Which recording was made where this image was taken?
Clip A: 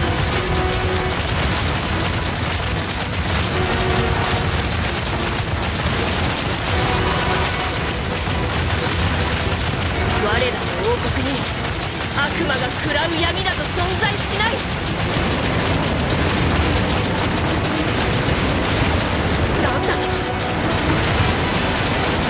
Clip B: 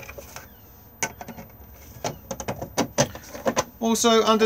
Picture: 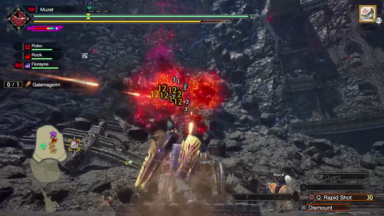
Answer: A